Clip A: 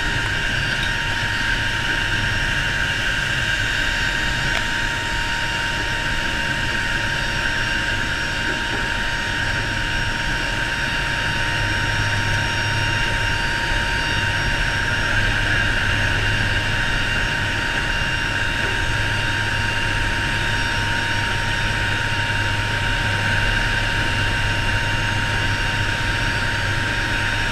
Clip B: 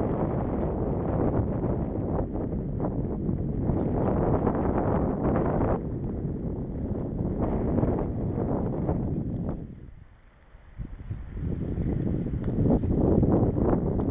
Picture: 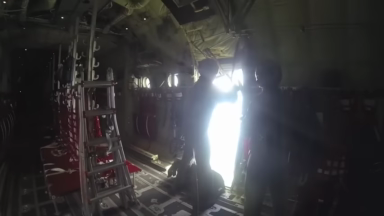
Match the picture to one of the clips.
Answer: A